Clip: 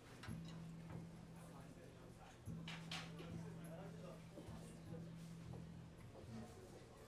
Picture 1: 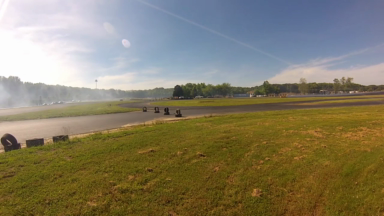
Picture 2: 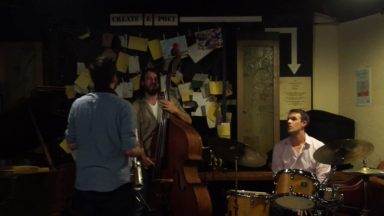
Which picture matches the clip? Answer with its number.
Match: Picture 2